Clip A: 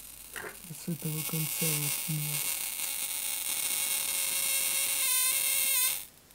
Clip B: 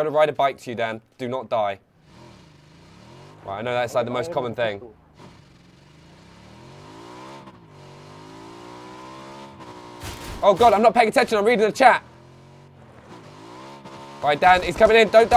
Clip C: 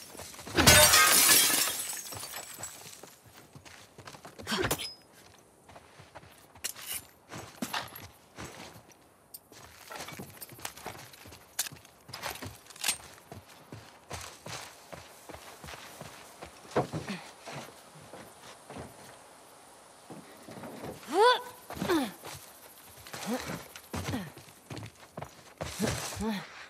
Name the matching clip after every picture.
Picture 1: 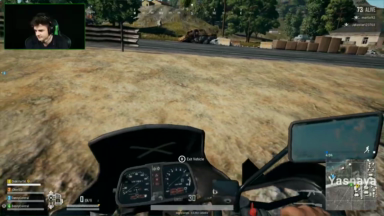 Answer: B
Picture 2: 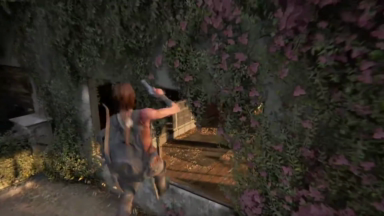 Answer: C